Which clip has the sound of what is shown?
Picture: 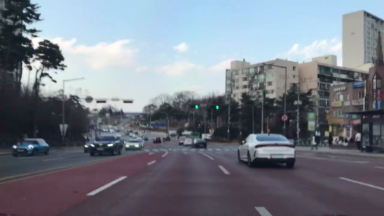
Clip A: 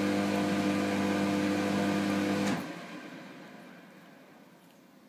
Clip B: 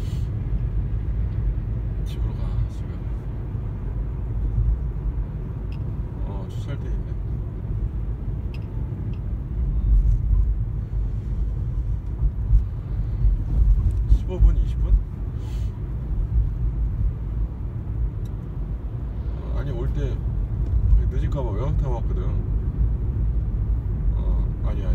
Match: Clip B